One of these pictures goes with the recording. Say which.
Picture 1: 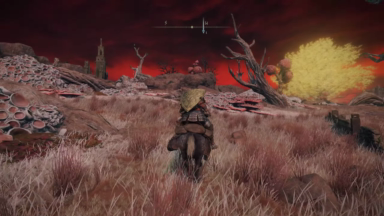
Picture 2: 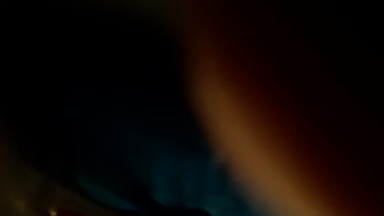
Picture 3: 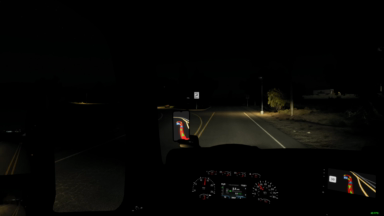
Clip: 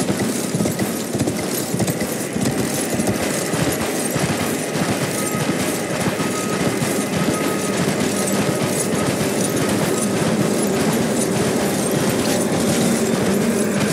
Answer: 1